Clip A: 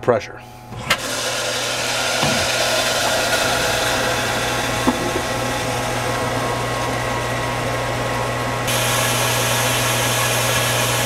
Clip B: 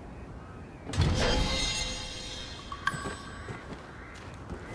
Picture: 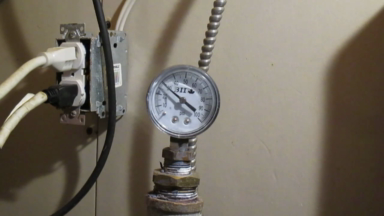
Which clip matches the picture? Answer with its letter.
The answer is A